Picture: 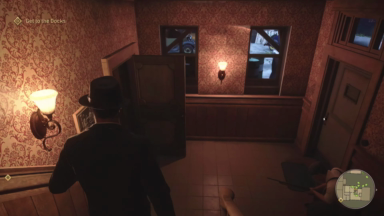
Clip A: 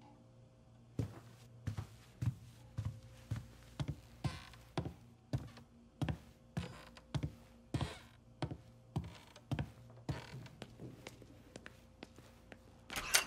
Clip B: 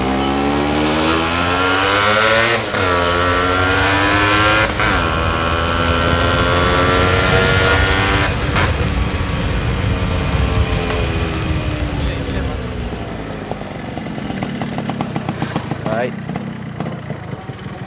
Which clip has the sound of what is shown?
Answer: A